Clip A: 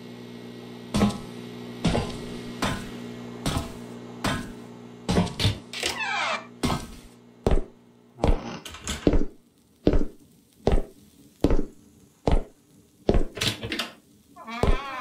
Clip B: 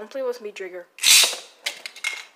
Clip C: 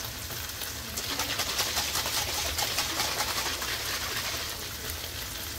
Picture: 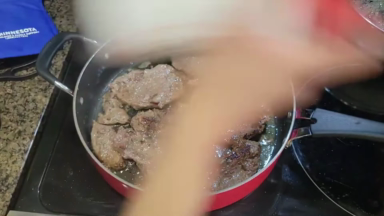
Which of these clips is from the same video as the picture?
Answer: C